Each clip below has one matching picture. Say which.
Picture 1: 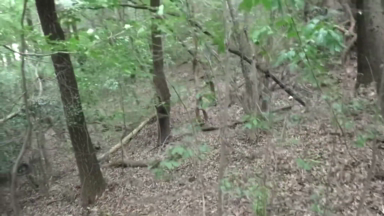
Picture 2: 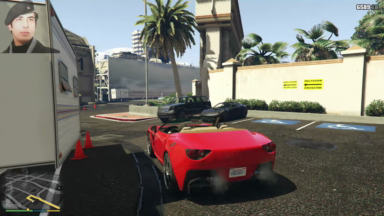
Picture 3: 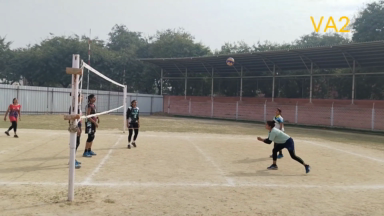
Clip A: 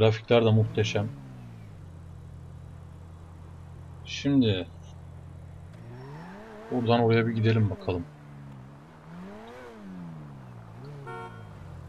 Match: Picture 2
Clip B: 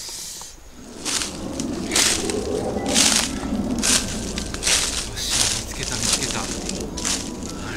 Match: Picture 1